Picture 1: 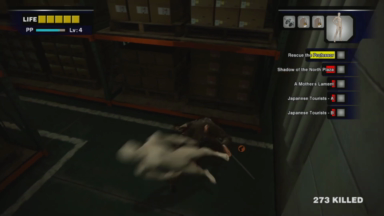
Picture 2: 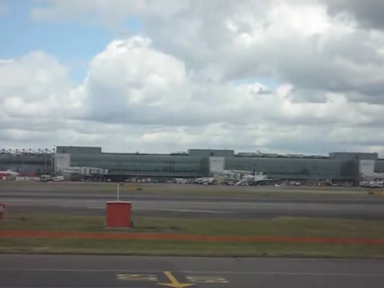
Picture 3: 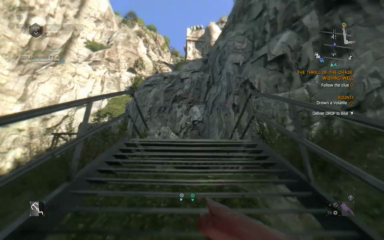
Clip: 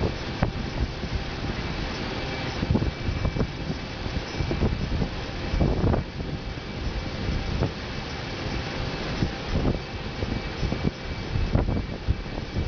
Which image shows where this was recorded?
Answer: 2